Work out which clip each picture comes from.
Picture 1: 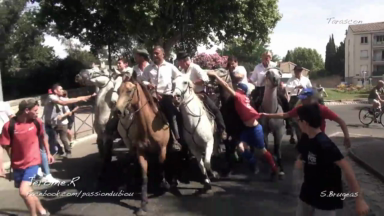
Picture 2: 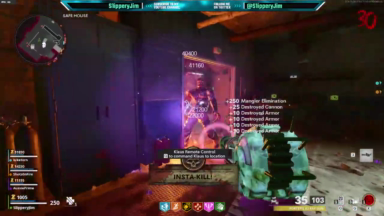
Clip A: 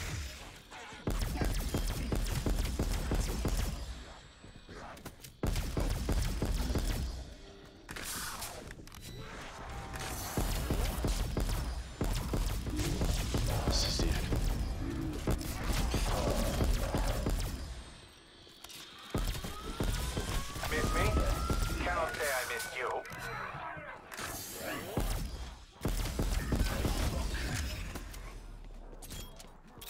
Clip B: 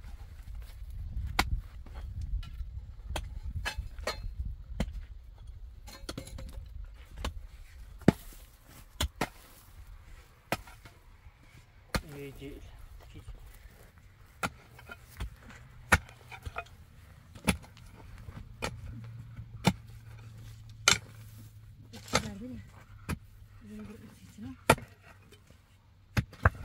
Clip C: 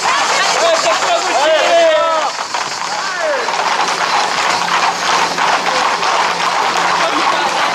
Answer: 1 C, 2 A